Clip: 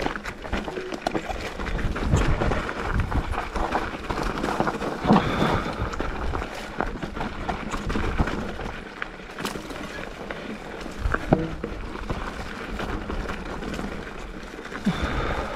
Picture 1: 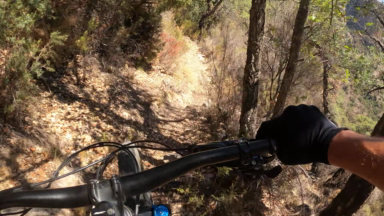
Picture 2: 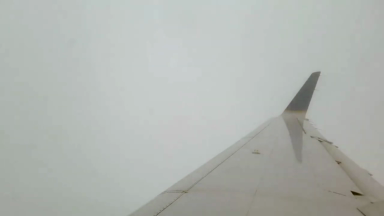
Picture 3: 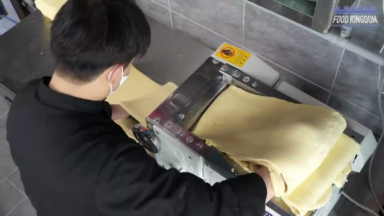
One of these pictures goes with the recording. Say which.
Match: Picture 1